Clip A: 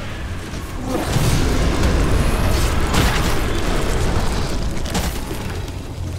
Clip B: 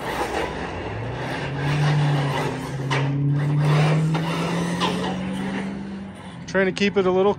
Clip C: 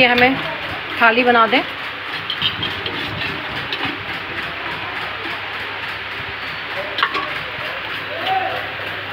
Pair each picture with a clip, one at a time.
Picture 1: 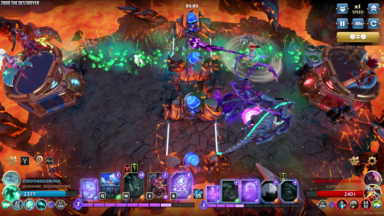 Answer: A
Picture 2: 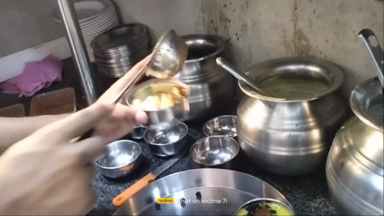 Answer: C